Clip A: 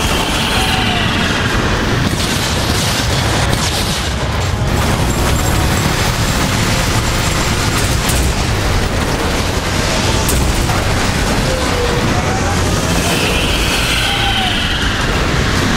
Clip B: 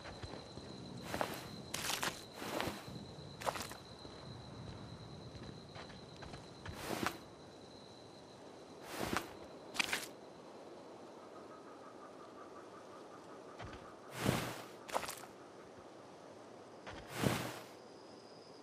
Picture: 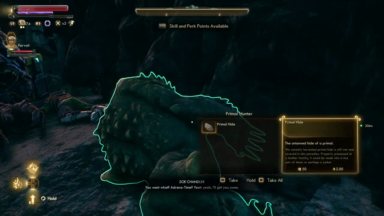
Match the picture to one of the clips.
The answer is B